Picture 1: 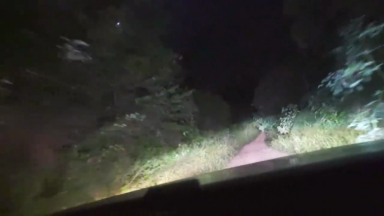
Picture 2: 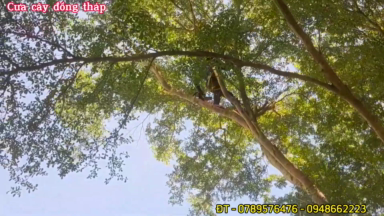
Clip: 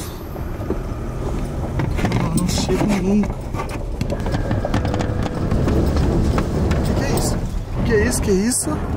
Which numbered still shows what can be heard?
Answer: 1